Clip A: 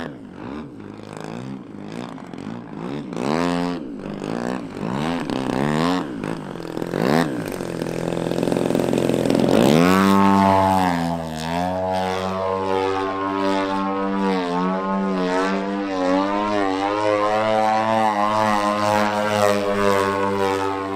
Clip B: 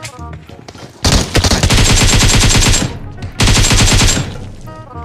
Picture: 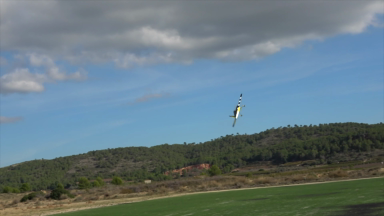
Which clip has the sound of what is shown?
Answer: A